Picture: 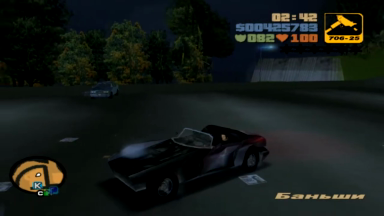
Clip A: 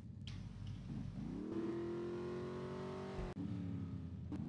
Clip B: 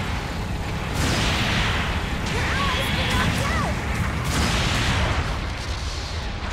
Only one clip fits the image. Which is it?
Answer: A